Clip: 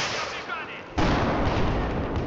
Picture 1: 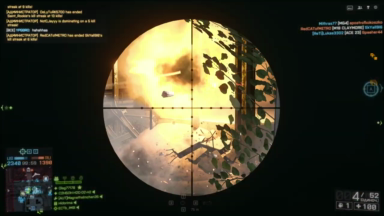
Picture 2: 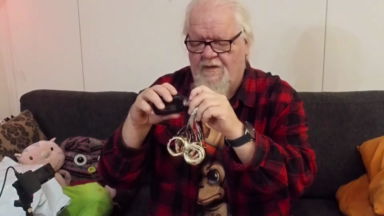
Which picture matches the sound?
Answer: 1